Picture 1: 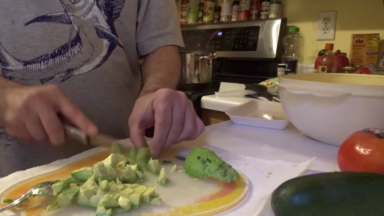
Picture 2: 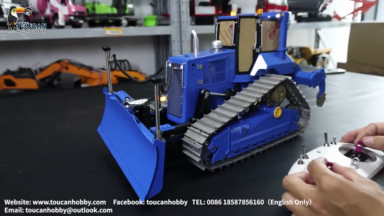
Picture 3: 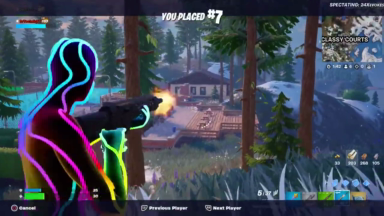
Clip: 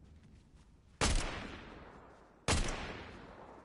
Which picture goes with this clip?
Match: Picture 3